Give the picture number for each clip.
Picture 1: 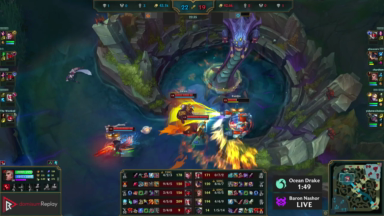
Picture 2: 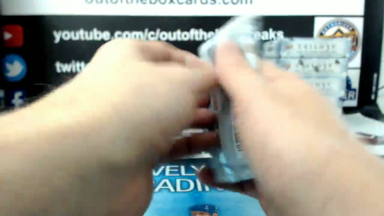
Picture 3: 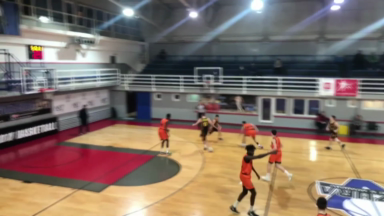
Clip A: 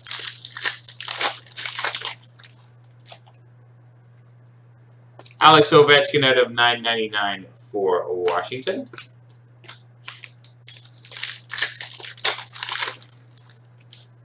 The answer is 2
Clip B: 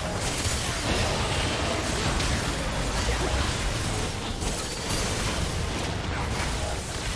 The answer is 1